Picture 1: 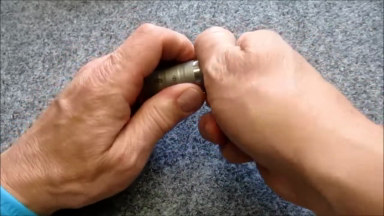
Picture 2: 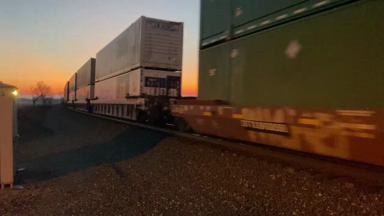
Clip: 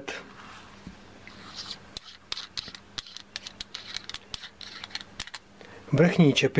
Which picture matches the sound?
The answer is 1